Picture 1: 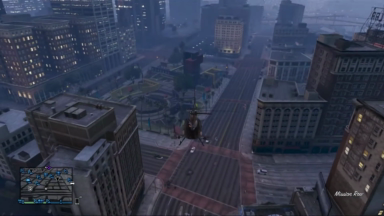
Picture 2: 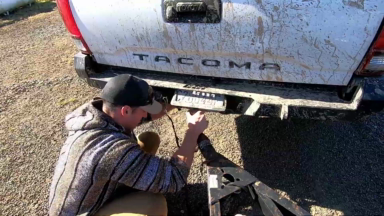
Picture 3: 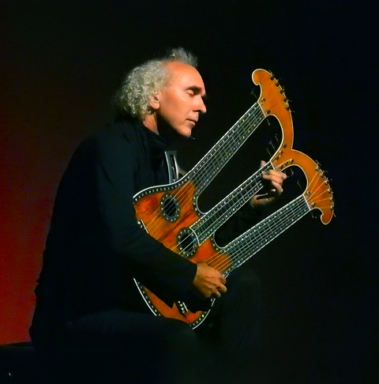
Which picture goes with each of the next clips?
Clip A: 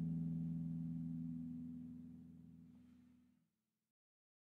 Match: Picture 3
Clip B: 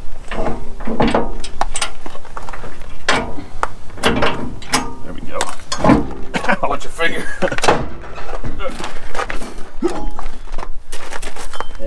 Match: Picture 2